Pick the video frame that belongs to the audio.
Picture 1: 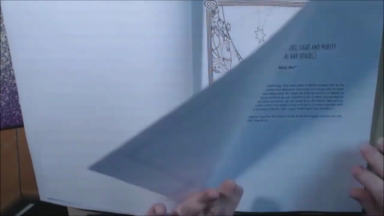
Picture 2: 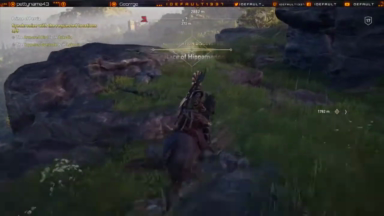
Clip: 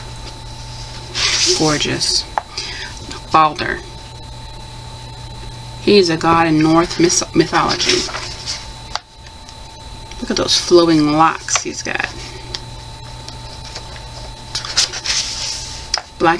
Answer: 1